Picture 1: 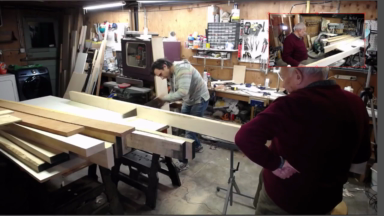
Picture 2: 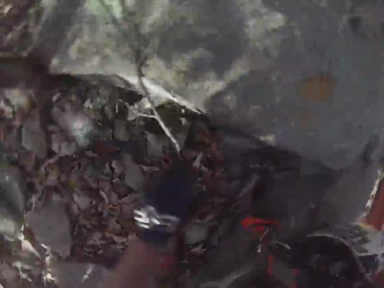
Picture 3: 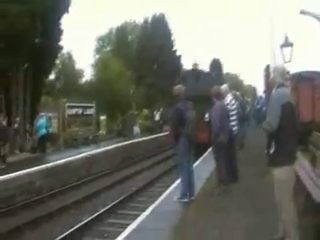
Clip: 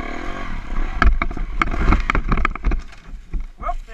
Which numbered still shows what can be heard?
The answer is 2